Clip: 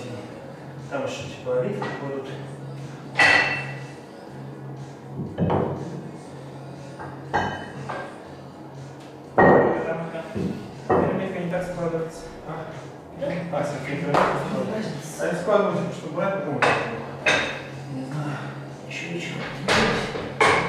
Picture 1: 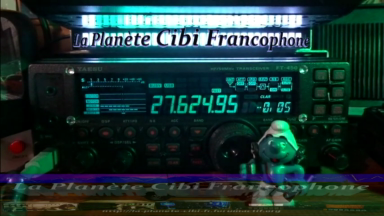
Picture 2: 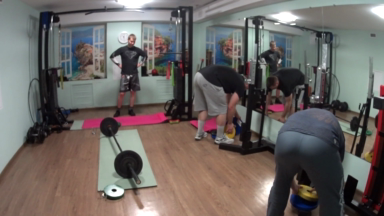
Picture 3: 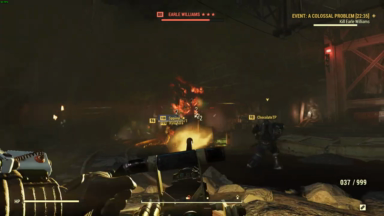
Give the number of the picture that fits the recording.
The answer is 2